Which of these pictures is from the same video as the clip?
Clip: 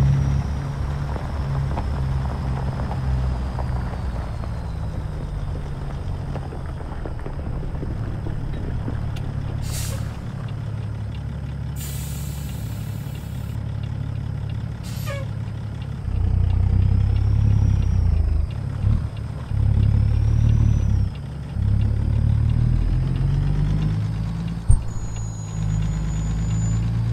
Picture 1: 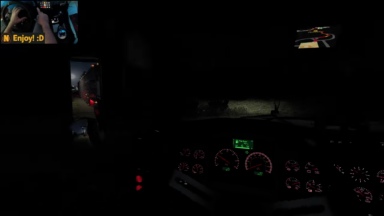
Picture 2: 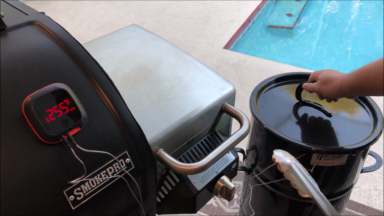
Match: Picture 1